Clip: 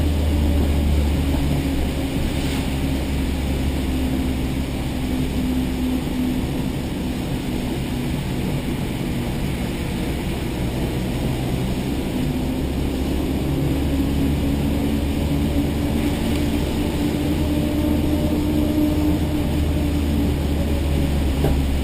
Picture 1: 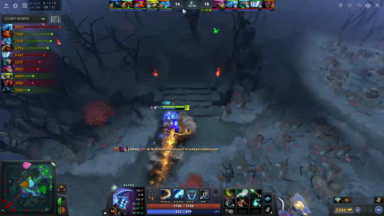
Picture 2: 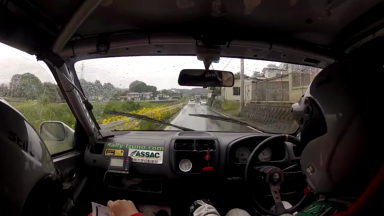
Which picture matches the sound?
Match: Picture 2